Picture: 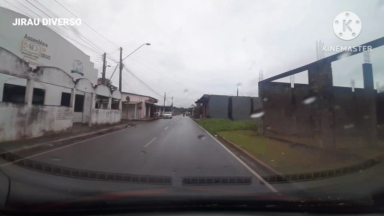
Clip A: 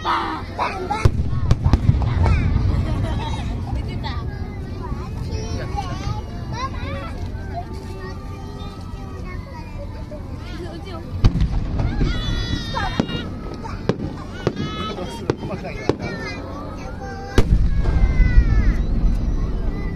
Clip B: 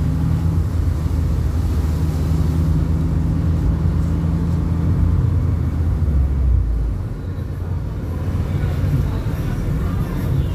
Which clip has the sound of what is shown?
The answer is B